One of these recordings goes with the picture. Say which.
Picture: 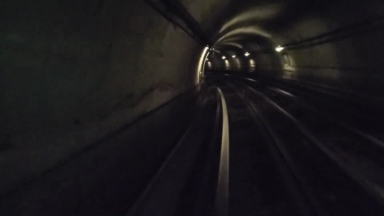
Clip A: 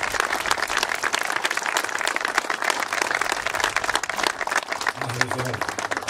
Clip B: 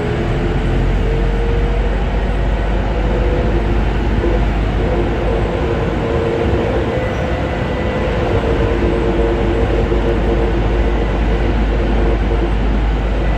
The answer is B